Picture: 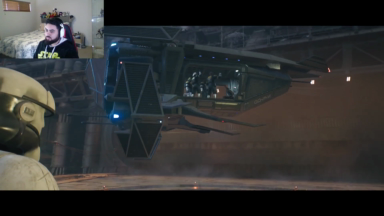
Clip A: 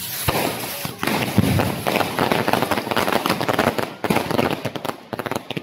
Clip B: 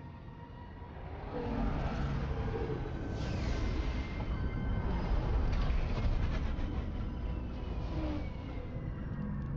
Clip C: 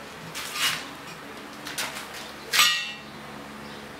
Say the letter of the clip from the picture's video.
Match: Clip B